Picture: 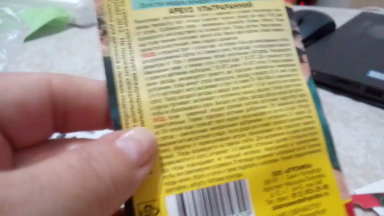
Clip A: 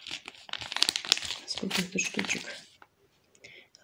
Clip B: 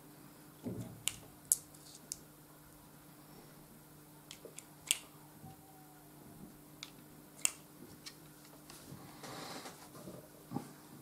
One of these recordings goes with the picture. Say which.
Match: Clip A